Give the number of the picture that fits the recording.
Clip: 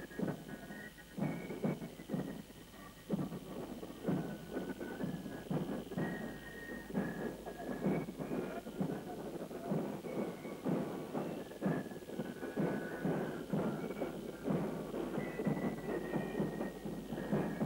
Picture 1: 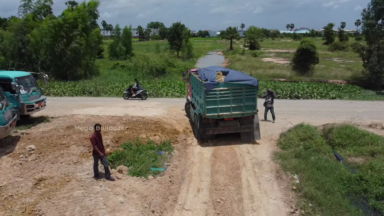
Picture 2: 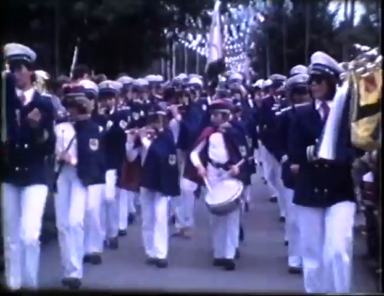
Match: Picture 2